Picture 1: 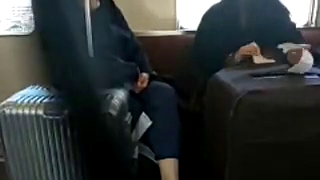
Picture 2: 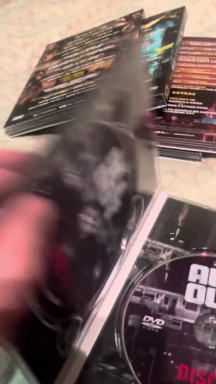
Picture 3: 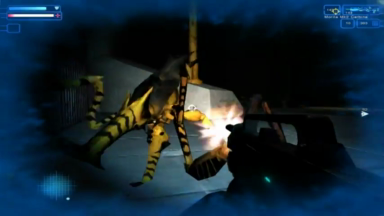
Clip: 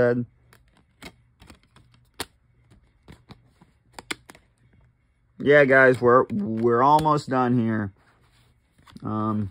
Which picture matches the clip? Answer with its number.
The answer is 2